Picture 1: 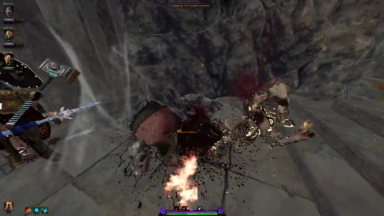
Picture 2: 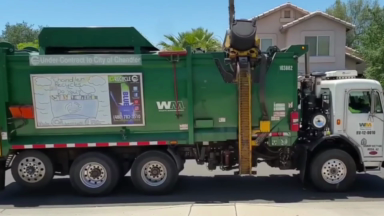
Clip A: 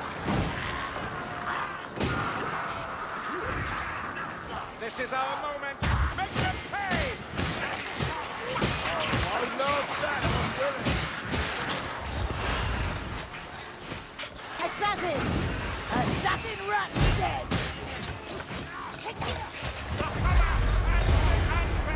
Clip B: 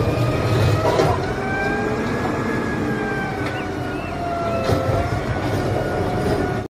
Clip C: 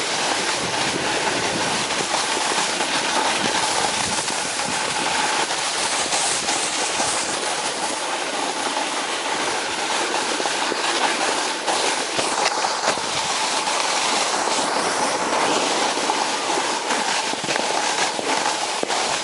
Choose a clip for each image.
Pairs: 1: A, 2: B